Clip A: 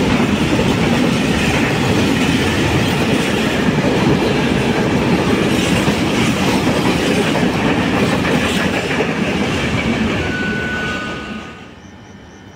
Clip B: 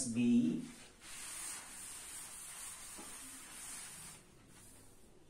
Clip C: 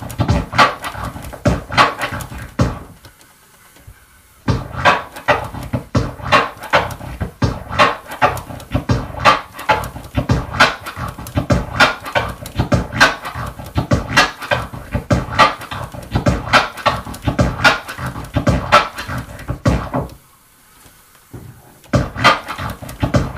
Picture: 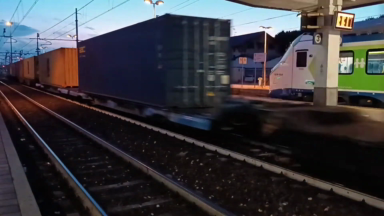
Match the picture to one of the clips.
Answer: A